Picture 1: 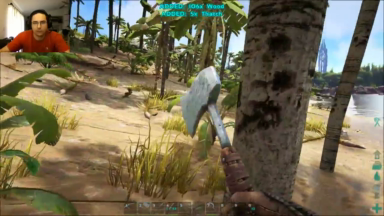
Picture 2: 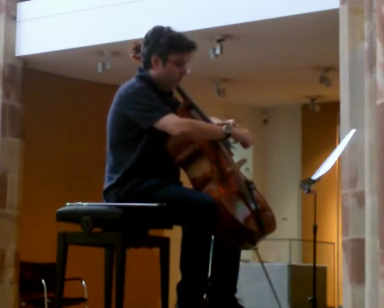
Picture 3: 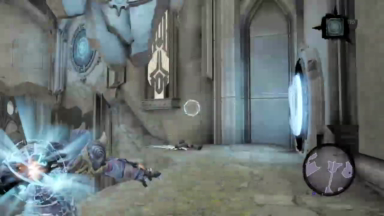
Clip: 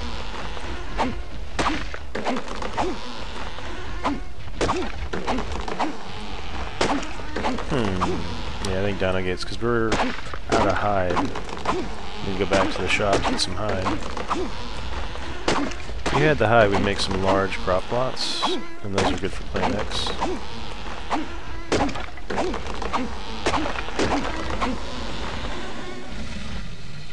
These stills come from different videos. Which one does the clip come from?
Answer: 1